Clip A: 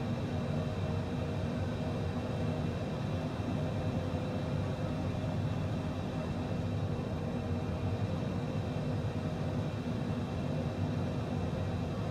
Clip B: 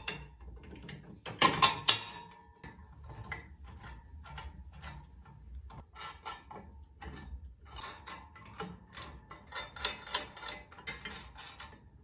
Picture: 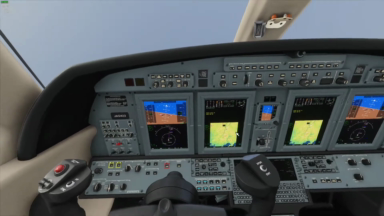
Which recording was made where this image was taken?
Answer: A